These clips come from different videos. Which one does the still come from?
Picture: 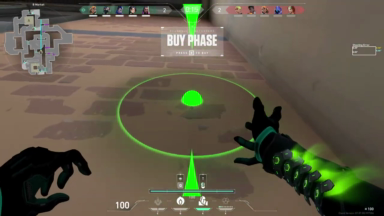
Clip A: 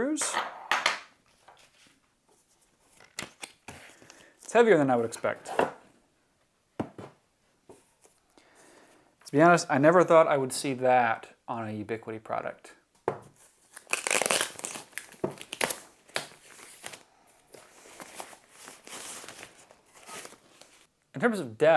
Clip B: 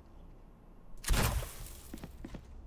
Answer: B